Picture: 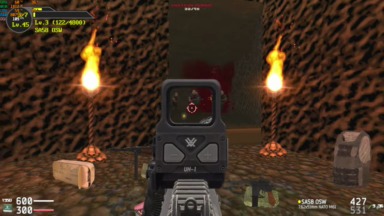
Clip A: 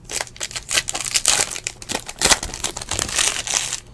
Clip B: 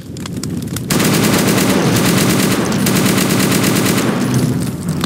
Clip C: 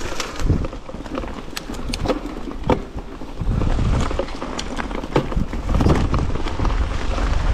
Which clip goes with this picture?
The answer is B